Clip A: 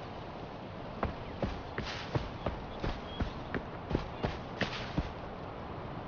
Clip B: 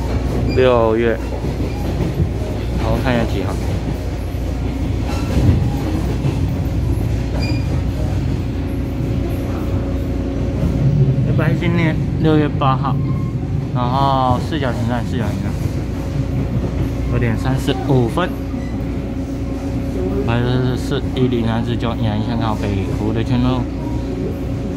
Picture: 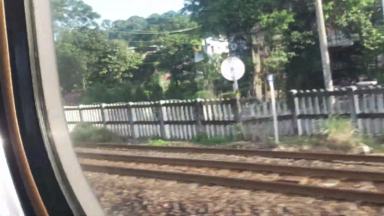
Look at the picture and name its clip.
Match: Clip B